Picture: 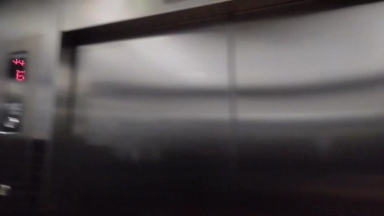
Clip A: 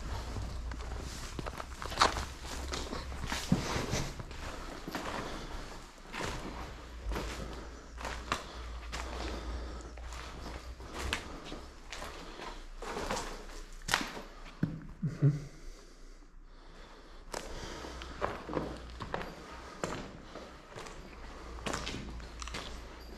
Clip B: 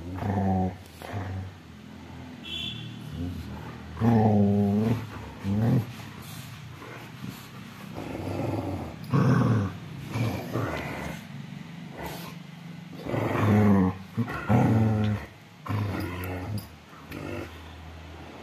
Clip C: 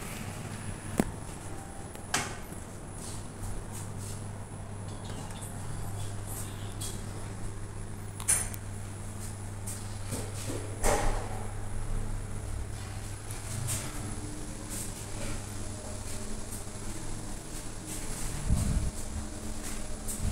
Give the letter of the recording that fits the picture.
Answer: C